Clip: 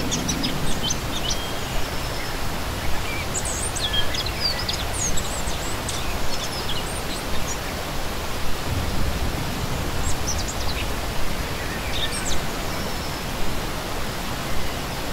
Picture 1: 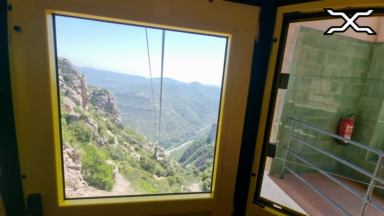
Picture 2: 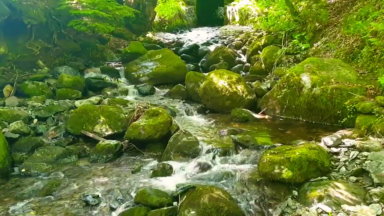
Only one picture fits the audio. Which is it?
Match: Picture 2